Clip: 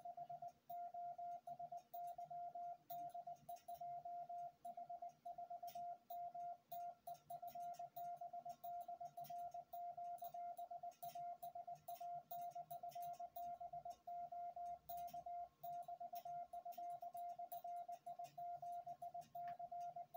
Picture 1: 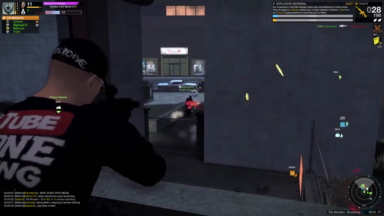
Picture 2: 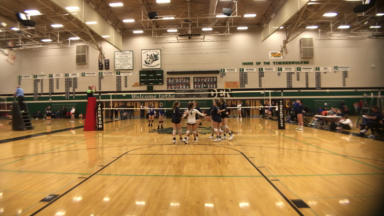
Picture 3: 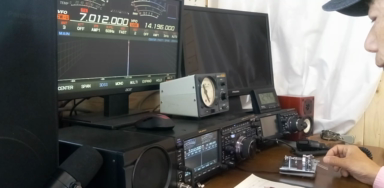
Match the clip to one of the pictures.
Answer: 3